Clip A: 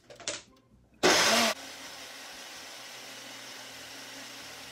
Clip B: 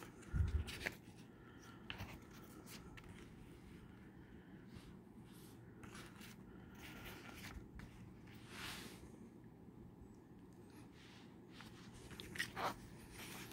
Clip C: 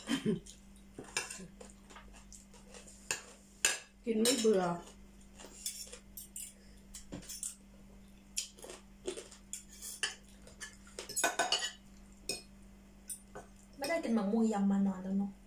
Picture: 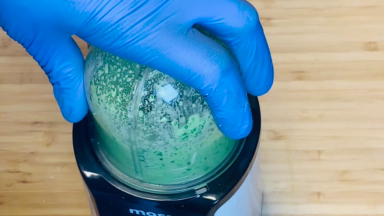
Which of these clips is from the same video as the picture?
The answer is A